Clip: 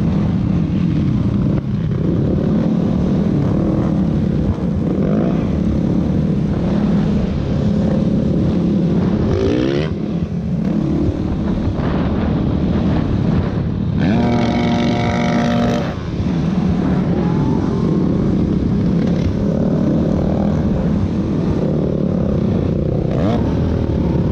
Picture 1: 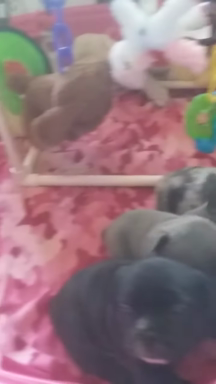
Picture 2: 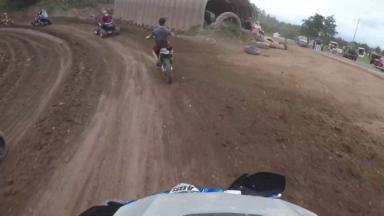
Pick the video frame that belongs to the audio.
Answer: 2